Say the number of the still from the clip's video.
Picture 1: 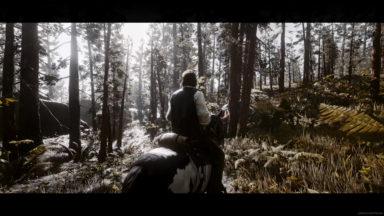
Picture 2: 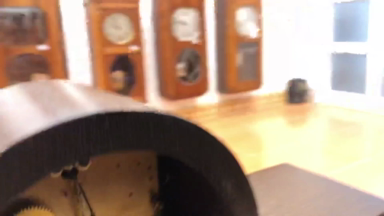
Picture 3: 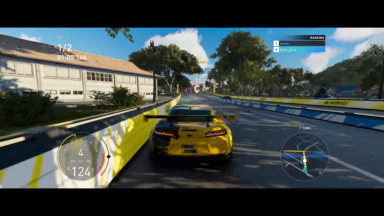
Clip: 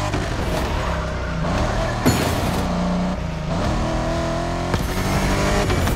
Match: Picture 3